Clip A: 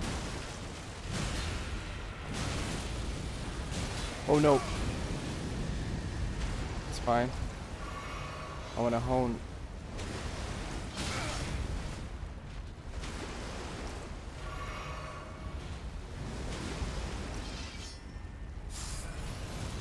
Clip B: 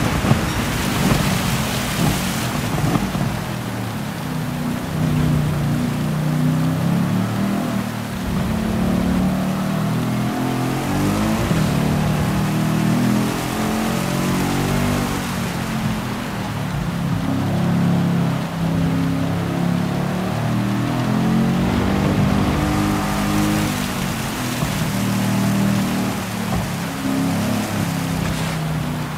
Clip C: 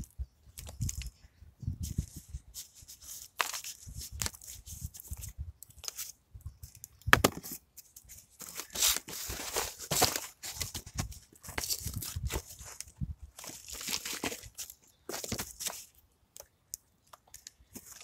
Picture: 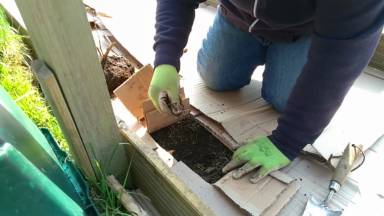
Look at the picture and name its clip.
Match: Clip C